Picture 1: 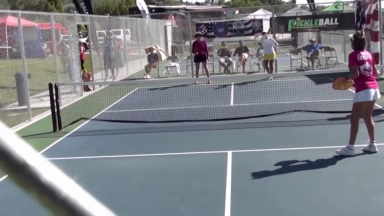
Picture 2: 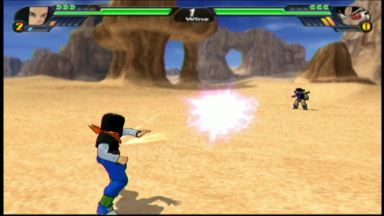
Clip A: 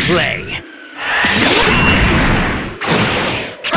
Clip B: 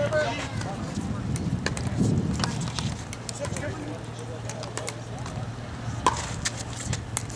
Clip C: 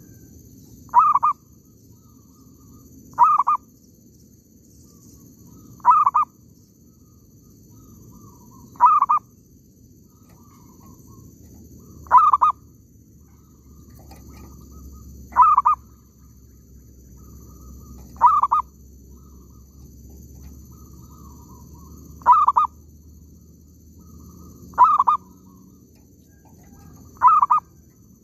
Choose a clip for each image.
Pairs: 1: B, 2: A